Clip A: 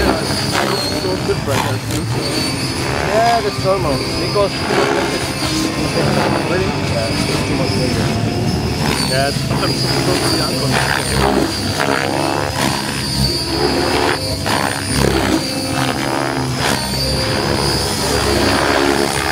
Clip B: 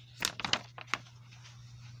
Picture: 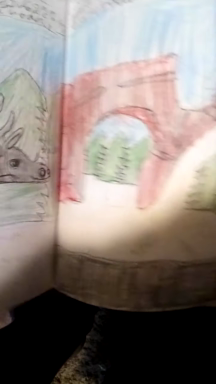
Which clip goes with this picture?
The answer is B